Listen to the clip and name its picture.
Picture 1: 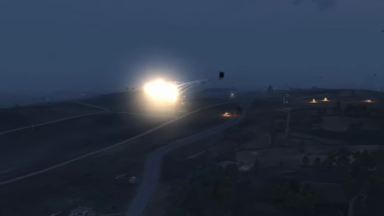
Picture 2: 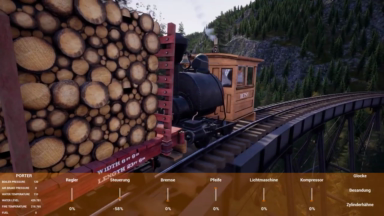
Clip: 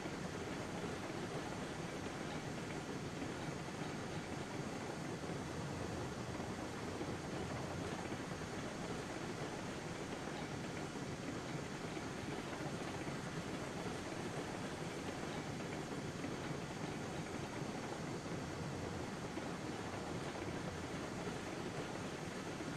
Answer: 2